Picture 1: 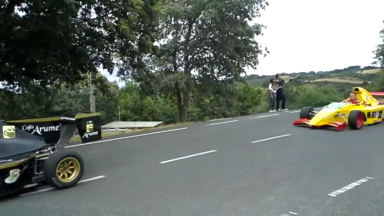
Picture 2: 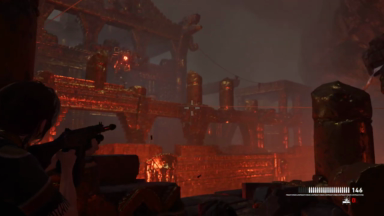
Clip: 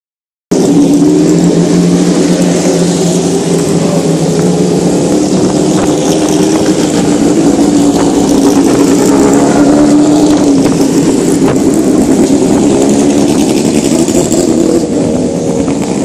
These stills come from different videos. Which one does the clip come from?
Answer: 1